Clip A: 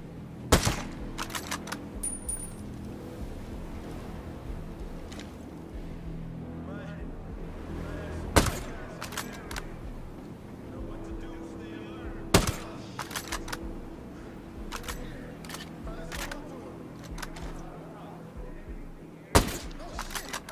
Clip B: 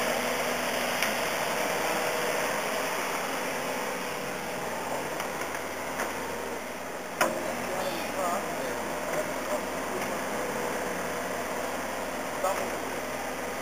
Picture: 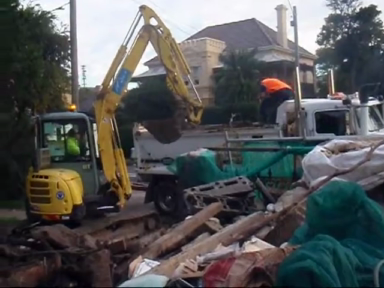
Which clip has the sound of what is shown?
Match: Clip B